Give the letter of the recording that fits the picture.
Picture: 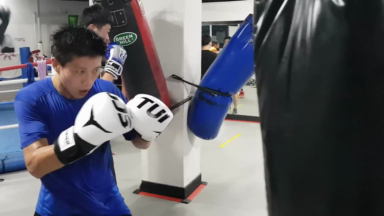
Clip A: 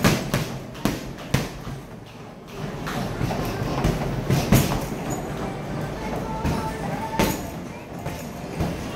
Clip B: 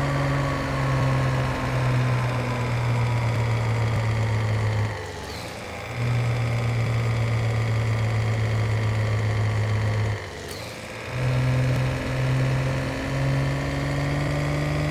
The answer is A